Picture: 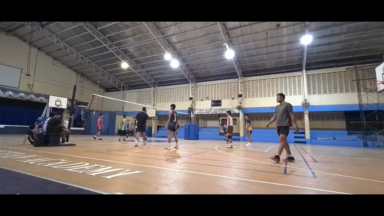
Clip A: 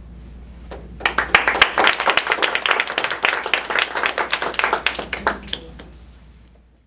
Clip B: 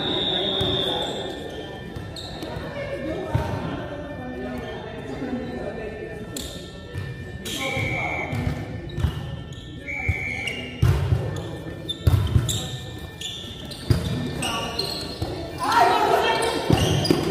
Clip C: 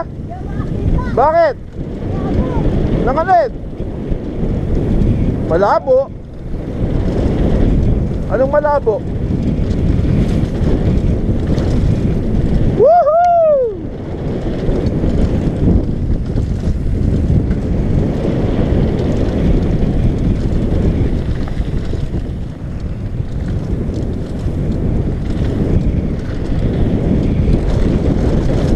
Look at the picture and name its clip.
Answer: B